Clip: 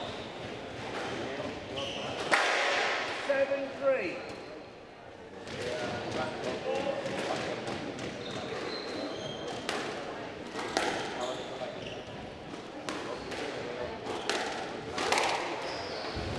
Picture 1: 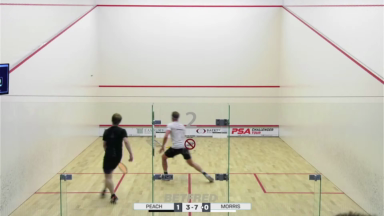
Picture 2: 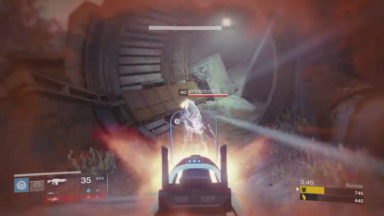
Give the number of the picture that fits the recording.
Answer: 1